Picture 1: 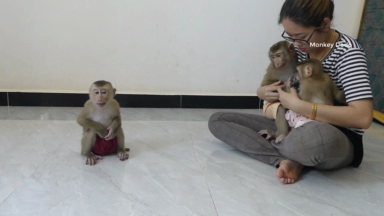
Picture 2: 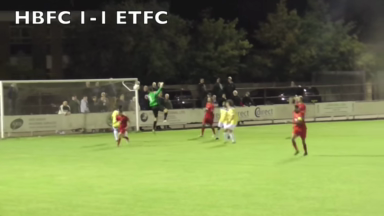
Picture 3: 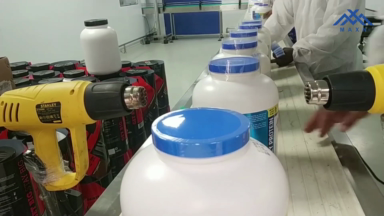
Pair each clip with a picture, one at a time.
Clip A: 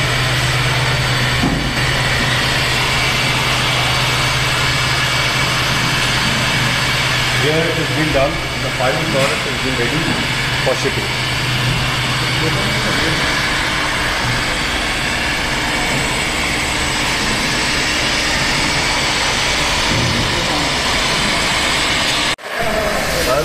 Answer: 3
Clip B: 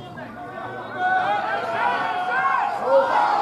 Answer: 2